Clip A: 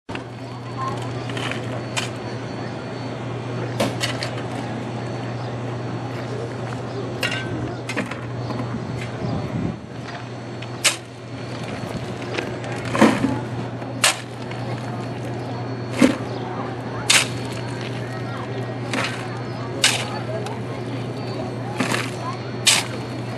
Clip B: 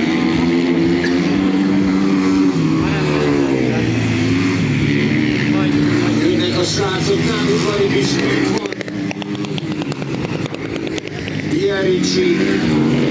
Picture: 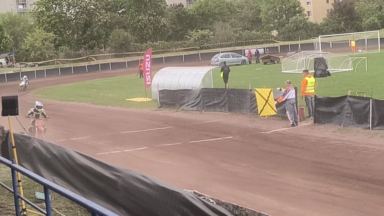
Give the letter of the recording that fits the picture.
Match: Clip B